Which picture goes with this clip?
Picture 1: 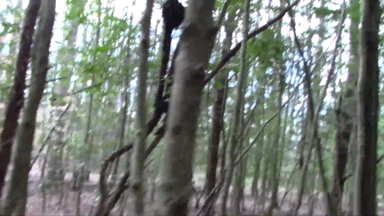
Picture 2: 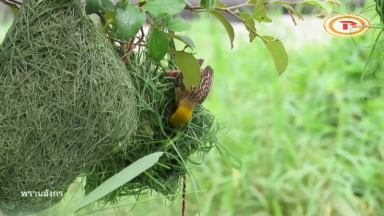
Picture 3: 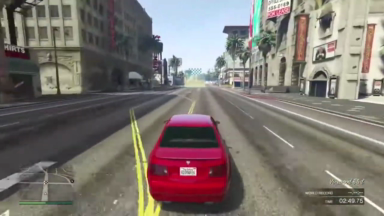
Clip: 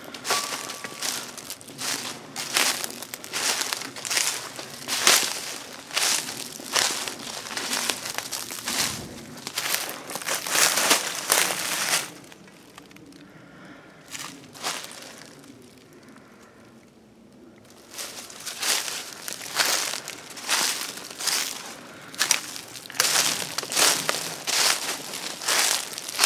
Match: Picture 1